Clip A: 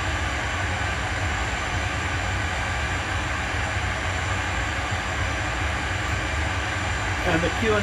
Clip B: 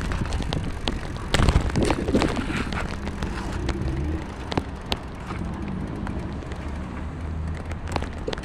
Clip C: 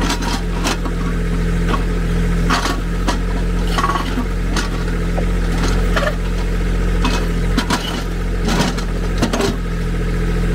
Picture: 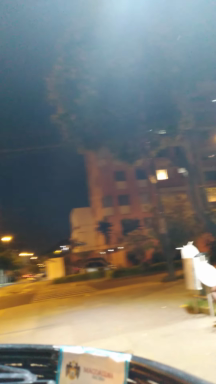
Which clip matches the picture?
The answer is B